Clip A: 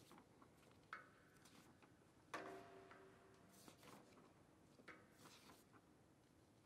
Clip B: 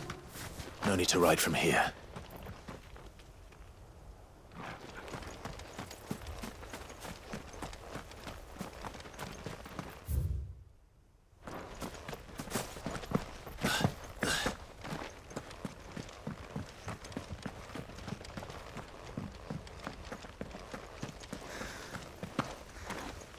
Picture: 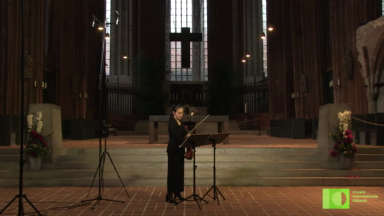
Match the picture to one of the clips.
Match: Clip A